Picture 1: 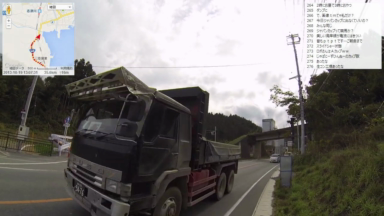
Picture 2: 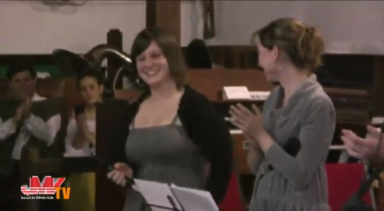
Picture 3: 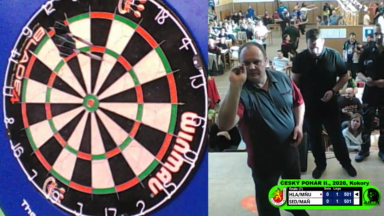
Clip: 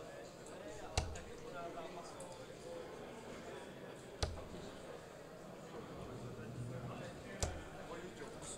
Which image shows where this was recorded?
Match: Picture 3